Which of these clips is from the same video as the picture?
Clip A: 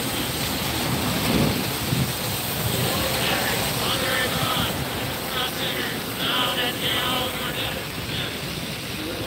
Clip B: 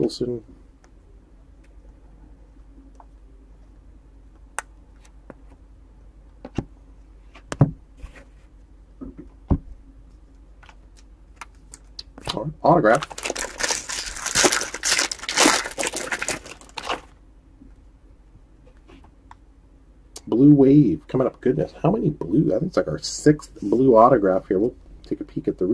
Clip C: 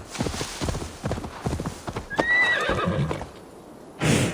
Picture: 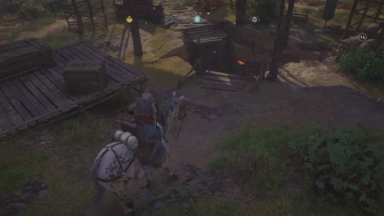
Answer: C